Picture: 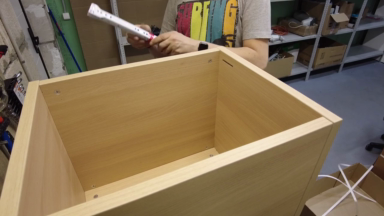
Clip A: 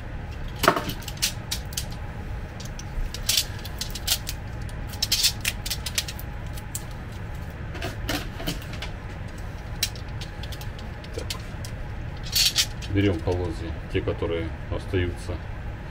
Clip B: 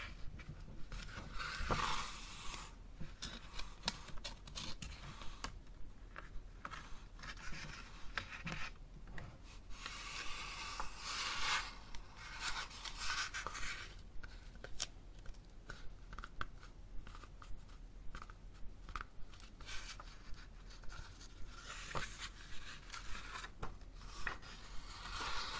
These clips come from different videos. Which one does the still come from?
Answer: A